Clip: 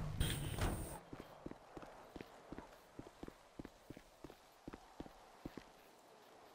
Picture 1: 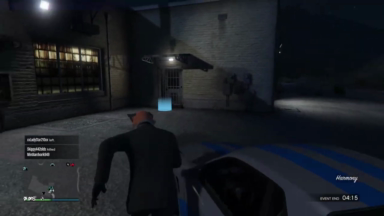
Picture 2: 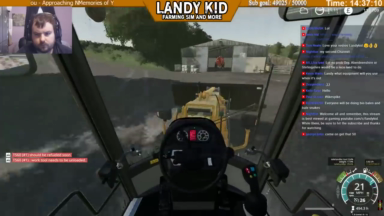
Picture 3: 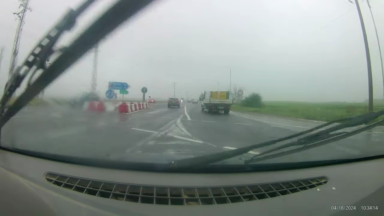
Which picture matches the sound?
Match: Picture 1